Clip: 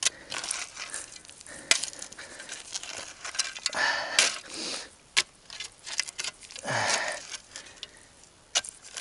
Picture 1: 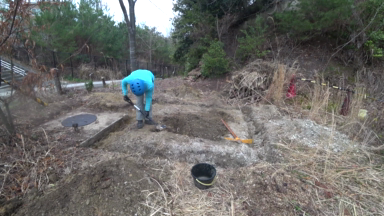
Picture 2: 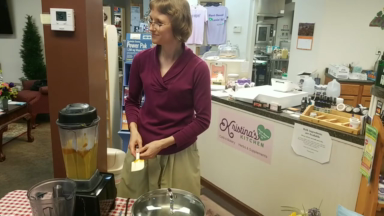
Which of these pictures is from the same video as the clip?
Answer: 1